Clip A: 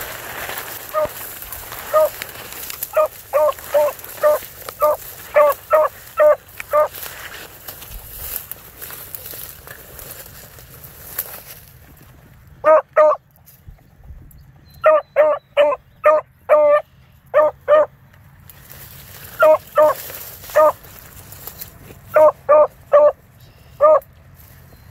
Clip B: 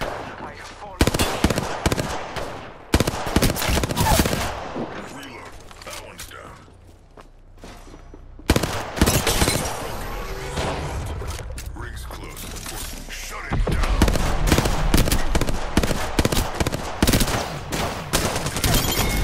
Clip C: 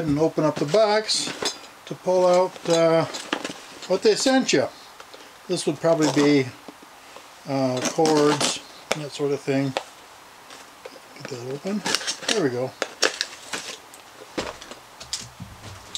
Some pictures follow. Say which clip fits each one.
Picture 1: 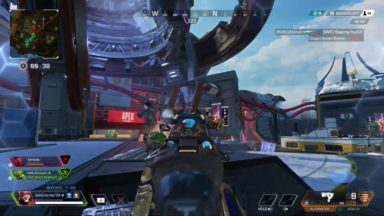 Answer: B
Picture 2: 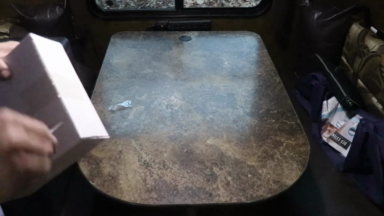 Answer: C